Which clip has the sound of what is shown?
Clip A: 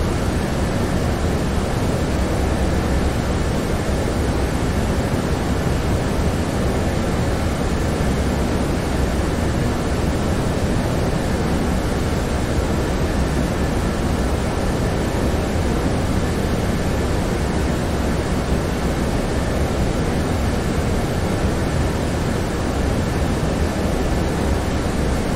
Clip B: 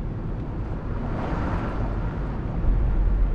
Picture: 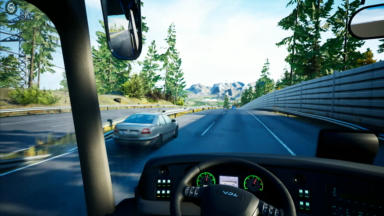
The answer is B